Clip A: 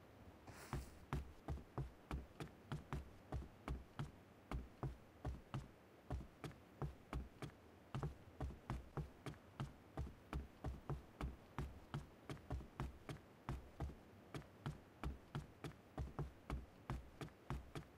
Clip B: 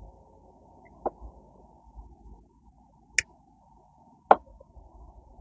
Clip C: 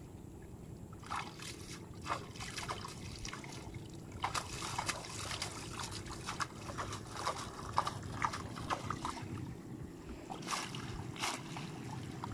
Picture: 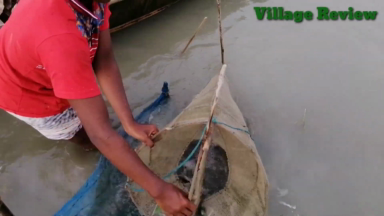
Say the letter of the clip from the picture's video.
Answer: C